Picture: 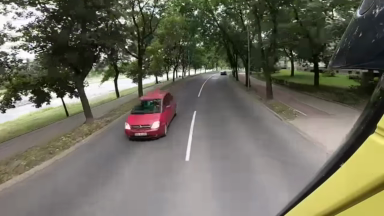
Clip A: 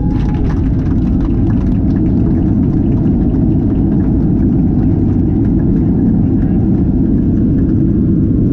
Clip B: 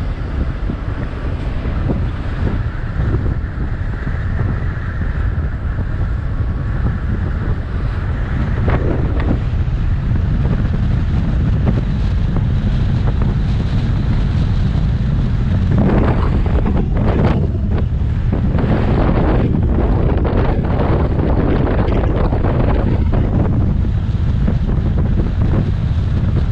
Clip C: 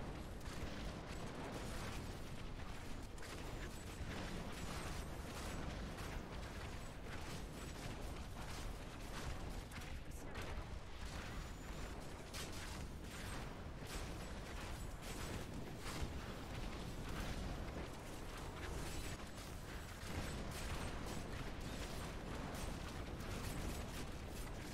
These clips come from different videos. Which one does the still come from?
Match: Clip B